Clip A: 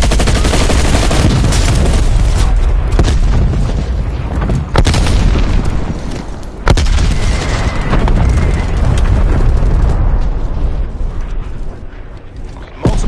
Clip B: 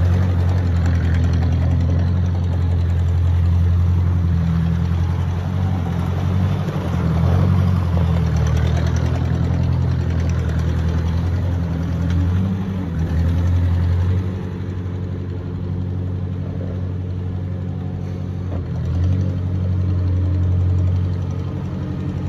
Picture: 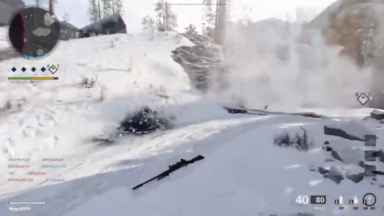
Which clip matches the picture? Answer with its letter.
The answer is A